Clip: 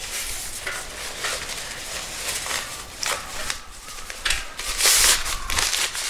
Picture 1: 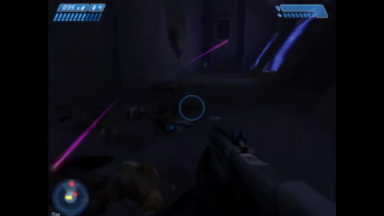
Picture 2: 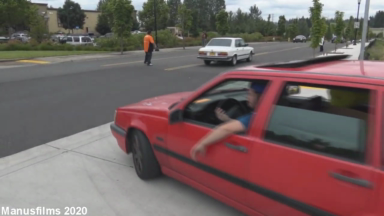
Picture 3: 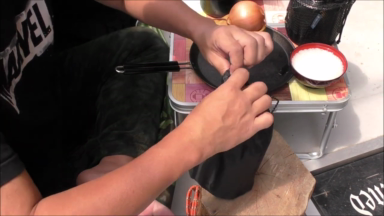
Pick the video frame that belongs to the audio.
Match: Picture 3